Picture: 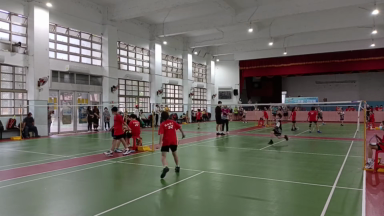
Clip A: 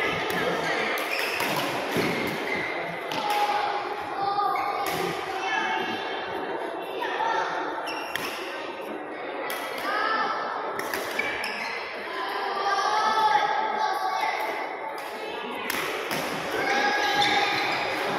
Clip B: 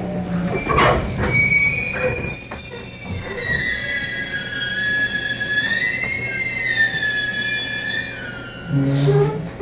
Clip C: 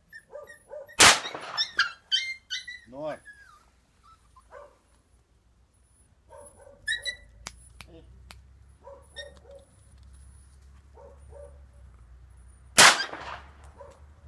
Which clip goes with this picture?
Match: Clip A